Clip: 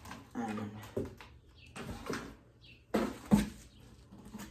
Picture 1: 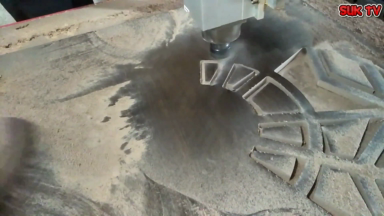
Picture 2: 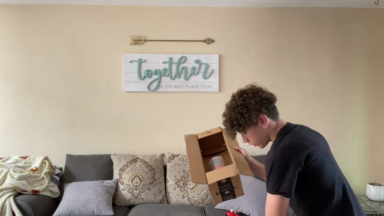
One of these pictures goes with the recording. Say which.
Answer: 2